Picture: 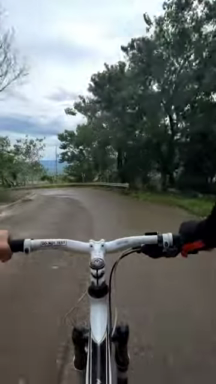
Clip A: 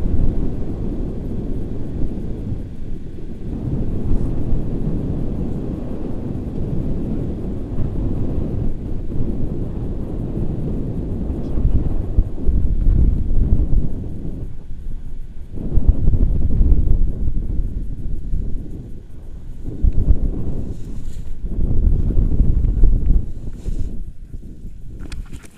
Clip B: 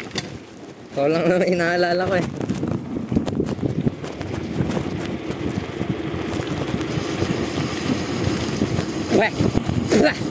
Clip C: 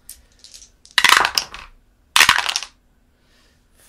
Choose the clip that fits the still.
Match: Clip B